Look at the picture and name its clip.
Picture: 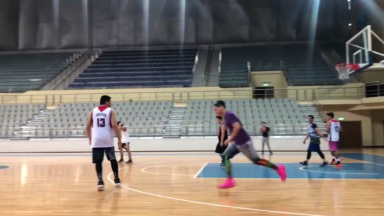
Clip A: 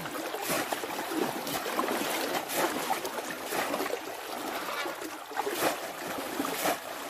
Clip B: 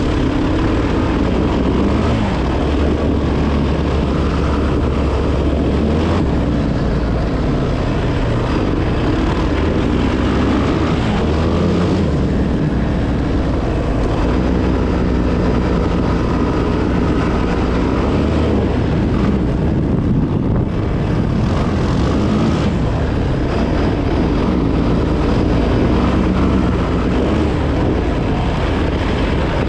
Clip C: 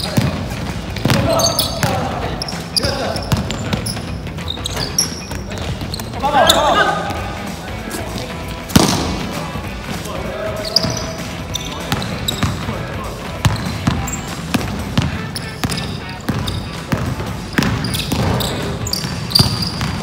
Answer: C